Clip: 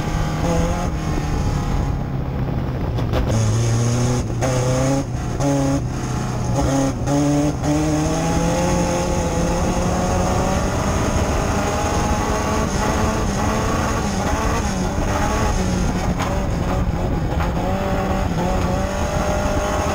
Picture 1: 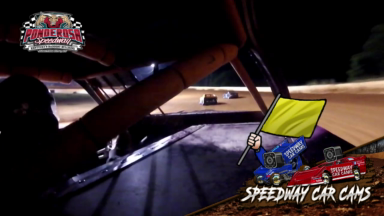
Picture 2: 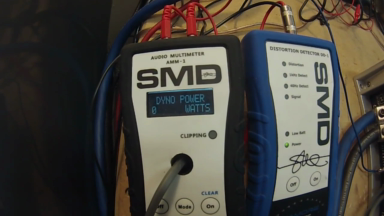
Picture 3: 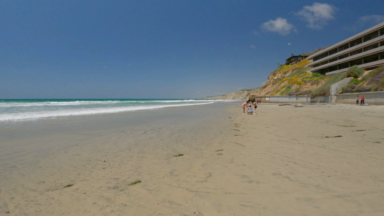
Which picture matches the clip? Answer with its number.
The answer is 1